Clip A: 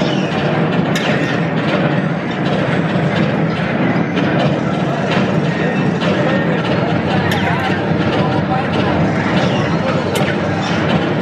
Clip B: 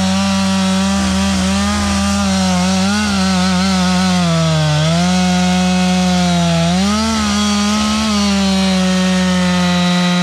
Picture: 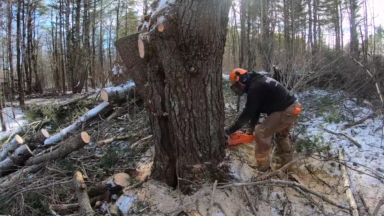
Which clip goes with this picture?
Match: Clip B